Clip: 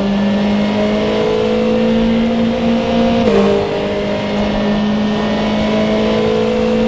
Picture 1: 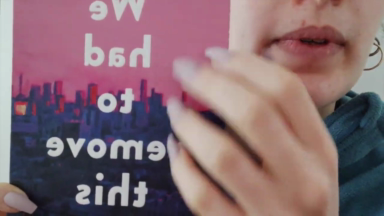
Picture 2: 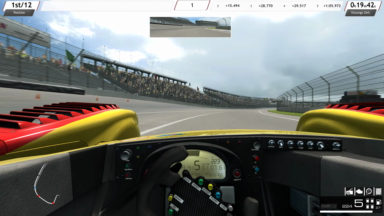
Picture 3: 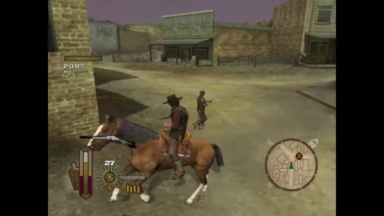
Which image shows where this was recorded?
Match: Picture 2